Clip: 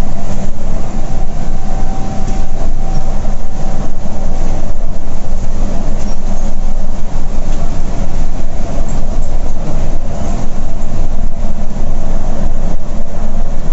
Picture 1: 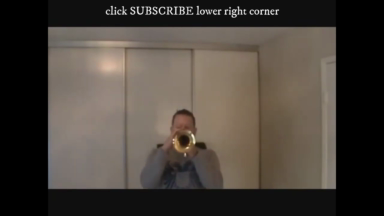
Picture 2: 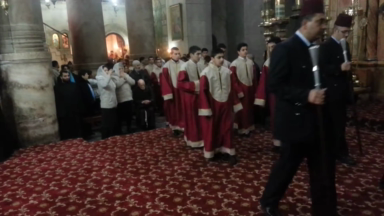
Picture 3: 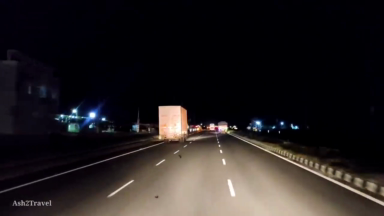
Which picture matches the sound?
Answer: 3